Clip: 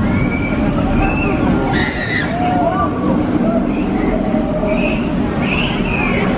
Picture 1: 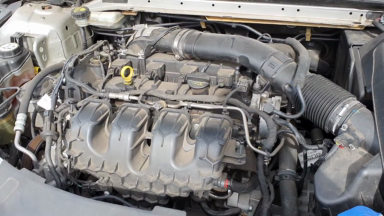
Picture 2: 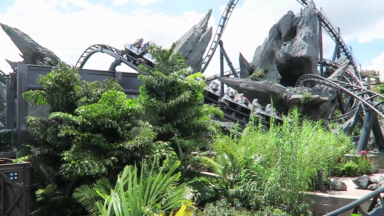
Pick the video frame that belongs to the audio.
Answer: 2